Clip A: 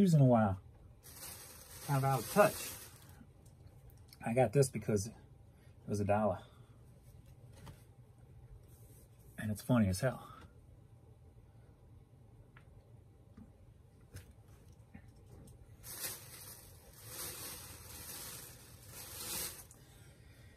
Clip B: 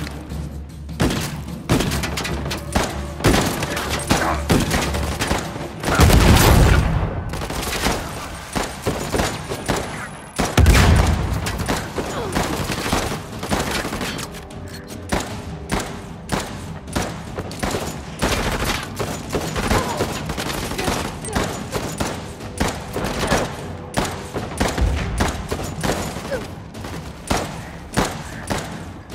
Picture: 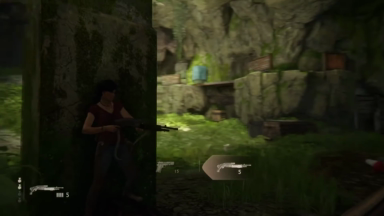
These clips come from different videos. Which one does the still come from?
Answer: B